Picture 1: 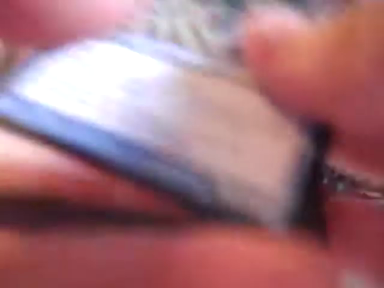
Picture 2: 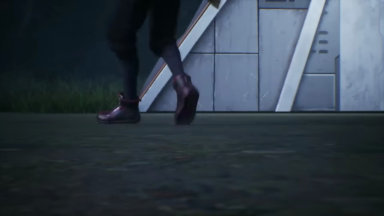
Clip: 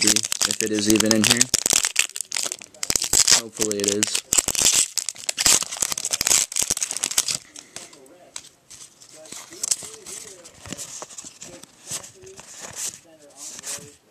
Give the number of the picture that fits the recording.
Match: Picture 1